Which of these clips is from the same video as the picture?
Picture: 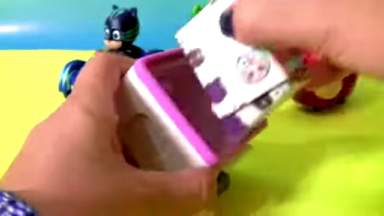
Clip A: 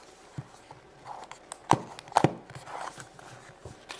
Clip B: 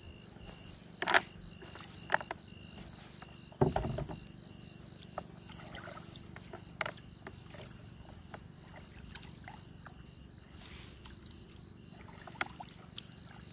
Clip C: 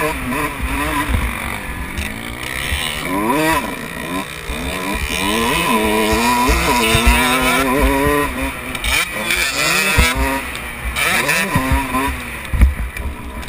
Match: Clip A